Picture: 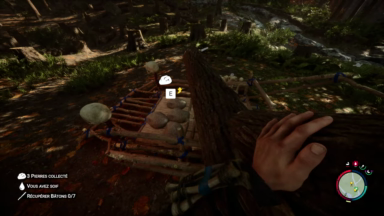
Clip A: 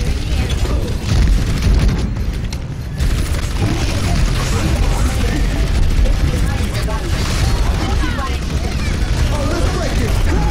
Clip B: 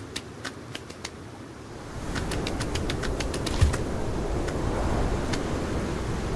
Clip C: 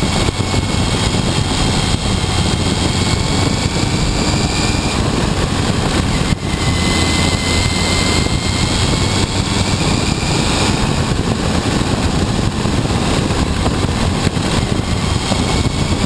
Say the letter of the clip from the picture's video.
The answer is B